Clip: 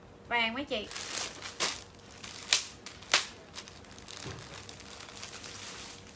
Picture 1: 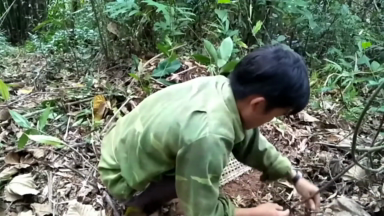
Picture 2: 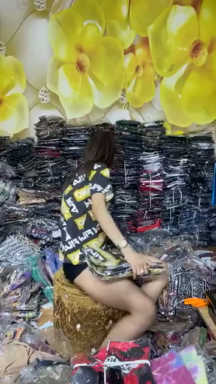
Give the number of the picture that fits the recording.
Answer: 2